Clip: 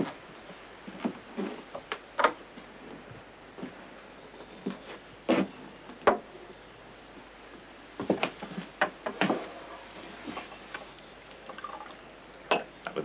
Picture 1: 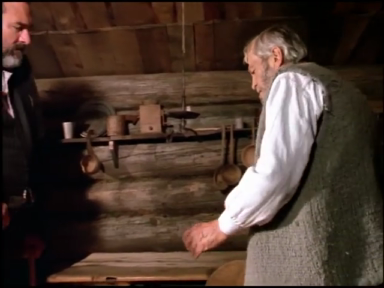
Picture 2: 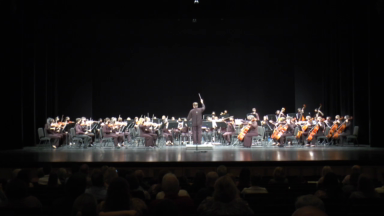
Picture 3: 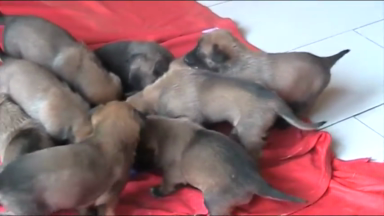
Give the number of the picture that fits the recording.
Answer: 1